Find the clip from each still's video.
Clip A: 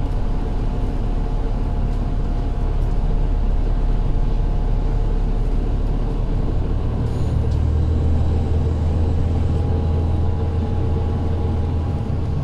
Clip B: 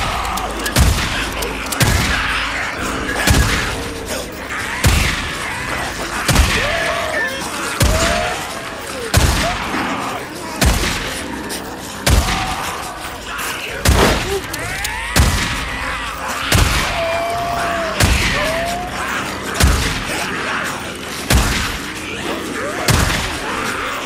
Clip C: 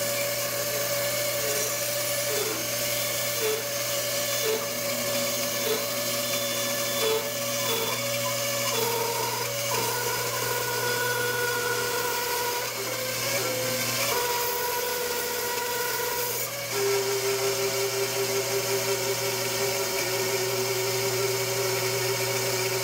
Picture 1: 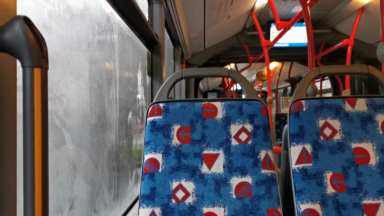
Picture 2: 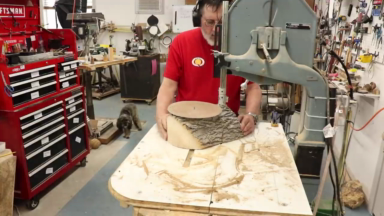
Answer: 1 A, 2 C